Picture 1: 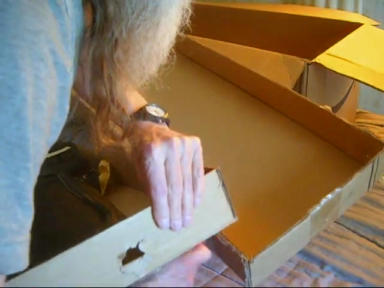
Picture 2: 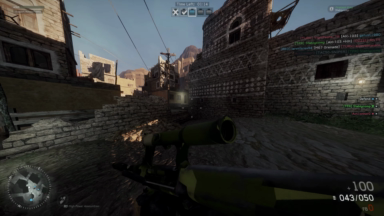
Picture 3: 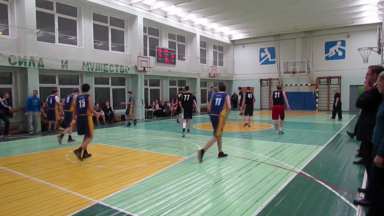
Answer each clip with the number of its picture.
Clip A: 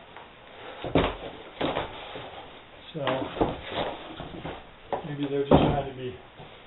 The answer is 1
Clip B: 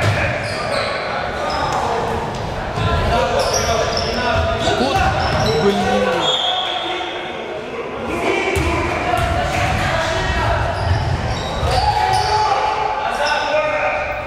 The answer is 3